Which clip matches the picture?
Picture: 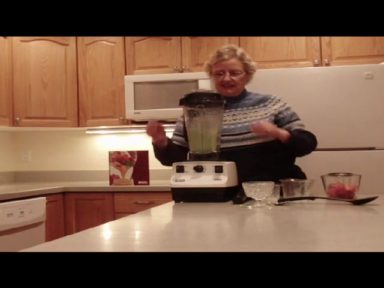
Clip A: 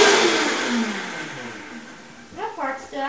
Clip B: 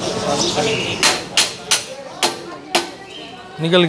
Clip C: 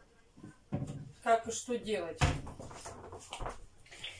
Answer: A